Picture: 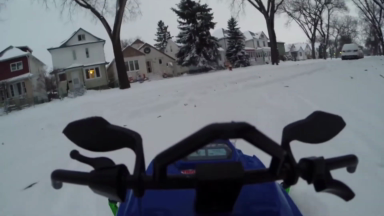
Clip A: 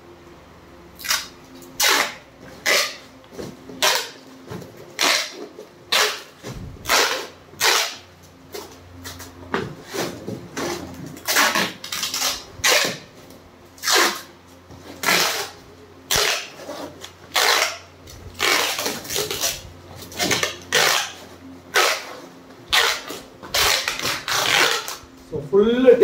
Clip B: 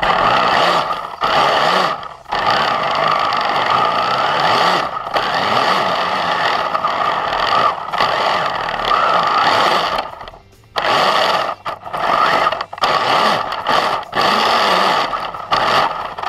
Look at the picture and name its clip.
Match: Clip B